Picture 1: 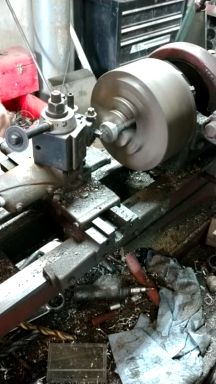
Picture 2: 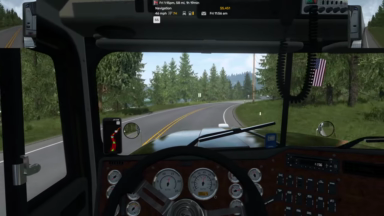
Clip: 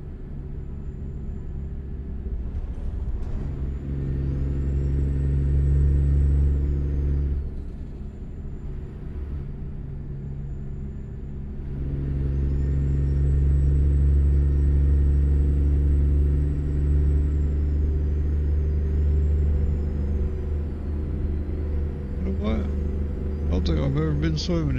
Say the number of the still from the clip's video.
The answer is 2